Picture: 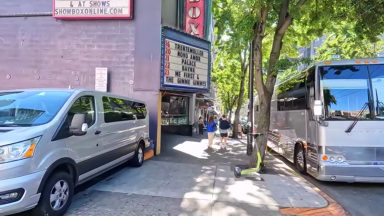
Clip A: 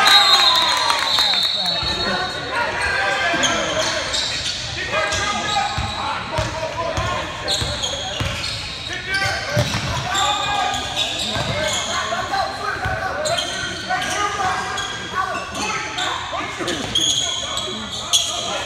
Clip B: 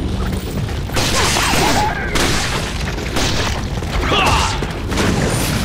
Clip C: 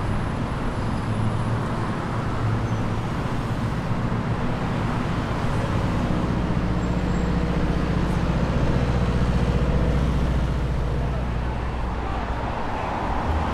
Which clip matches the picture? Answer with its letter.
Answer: C